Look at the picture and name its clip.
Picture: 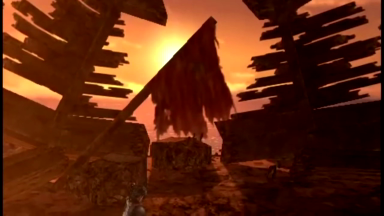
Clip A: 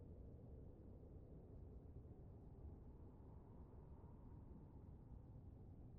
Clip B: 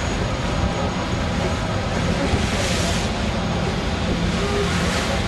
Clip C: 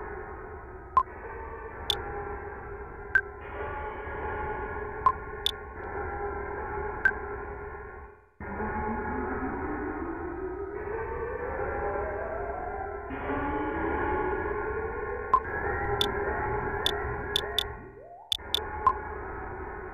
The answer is A